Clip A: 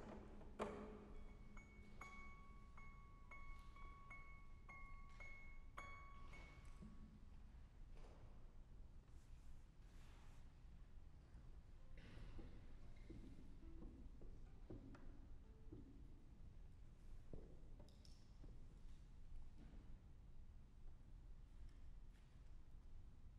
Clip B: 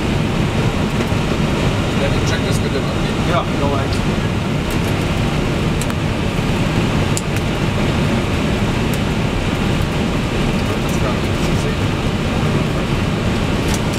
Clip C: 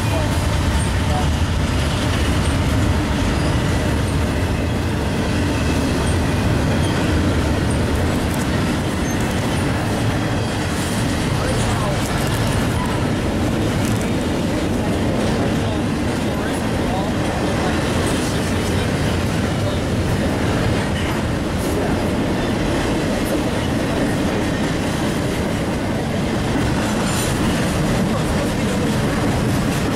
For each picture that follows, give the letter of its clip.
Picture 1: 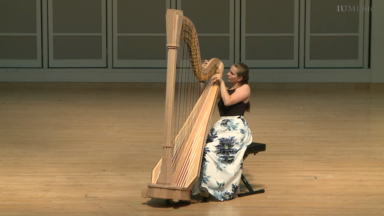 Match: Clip A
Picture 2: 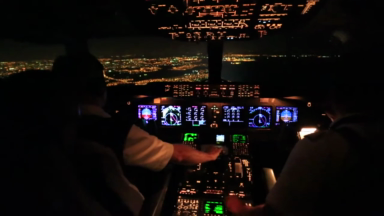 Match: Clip B